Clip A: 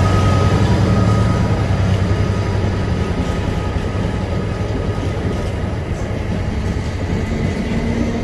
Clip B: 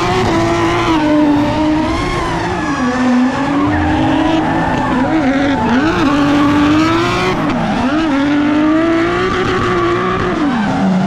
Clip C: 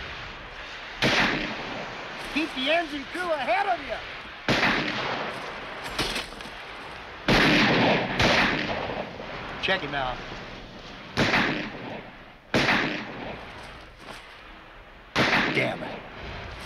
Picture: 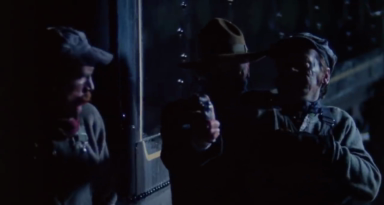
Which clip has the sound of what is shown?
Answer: C